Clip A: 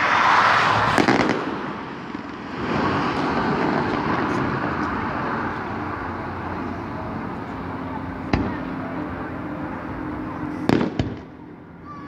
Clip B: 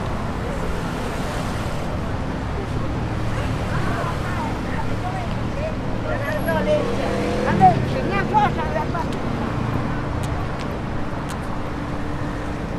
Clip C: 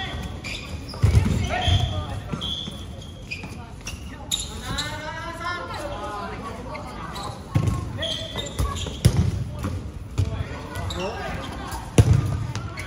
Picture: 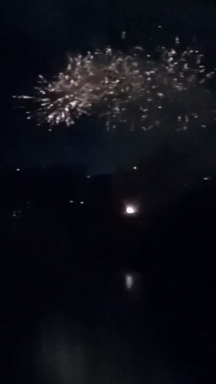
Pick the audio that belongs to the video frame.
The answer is A